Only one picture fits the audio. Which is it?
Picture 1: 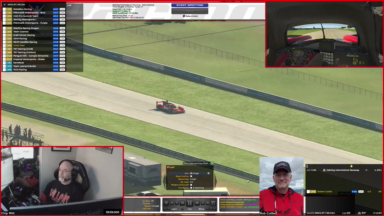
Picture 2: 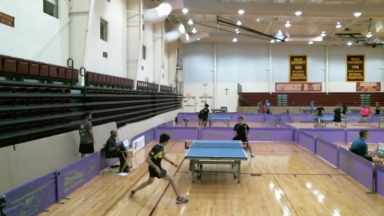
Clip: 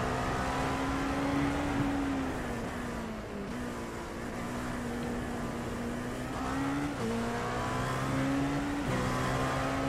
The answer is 1